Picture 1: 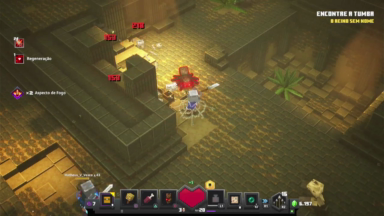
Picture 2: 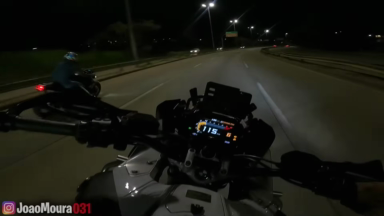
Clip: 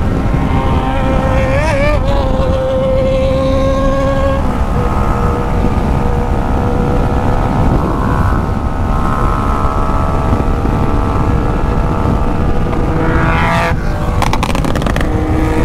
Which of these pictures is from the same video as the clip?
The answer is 2